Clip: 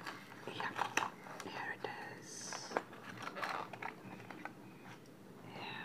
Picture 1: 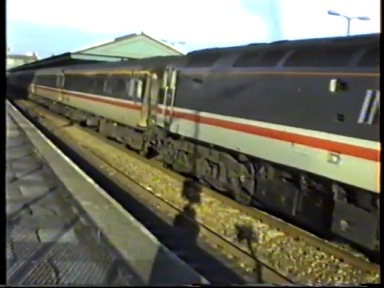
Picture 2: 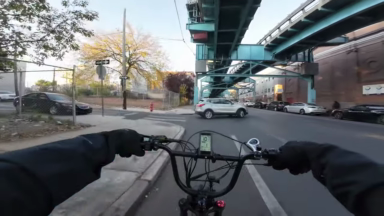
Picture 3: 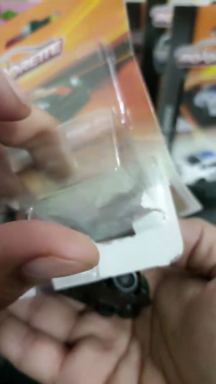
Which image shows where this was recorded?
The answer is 3